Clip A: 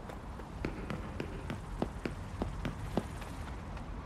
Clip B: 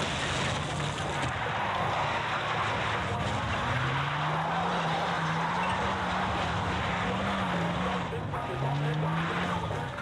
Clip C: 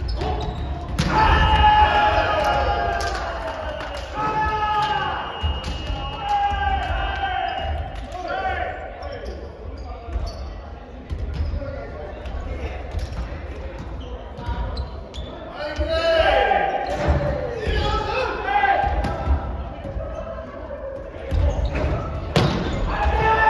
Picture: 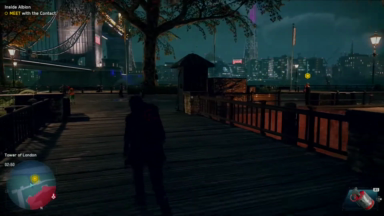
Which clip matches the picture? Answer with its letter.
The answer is A